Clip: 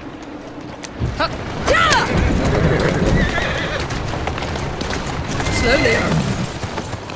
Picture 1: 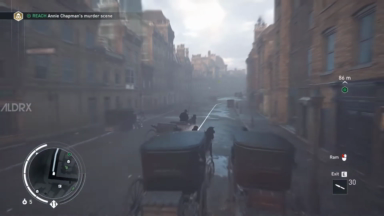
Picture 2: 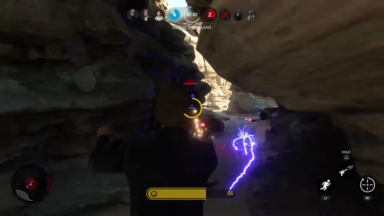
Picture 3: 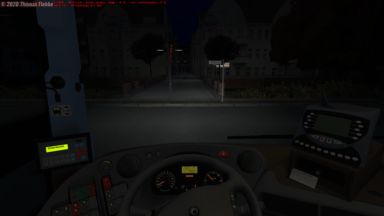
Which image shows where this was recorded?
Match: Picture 1